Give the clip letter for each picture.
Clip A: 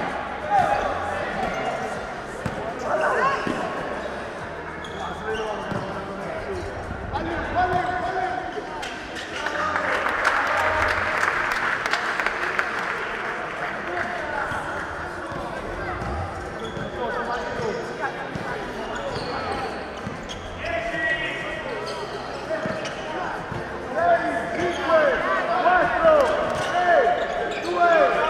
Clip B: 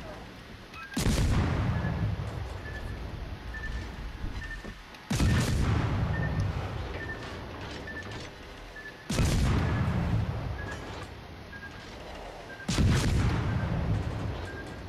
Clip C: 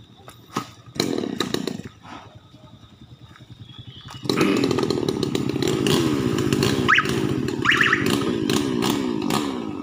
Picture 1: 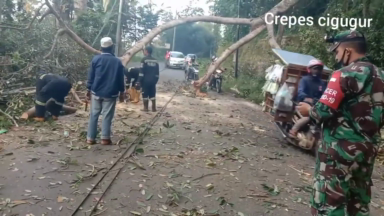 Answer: C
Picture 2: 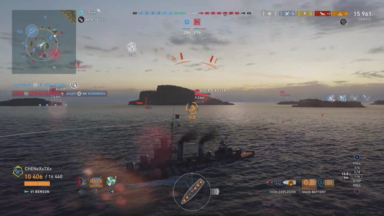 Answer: B